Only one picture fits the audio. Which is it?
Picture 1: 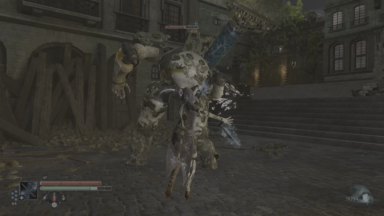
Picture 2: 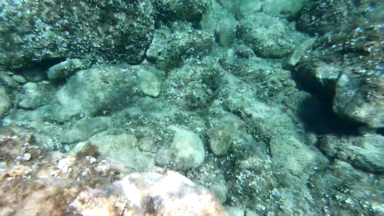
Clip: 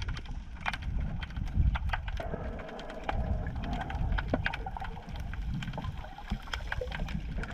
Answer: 2